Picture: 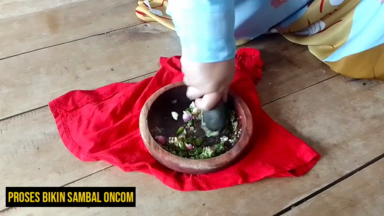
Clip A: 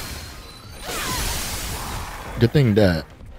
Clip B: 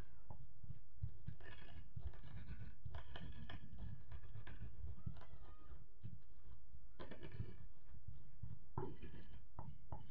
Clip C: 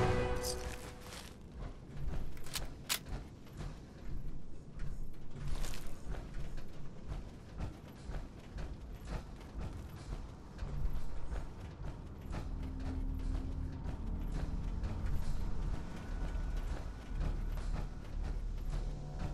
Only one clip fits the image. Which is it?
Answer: B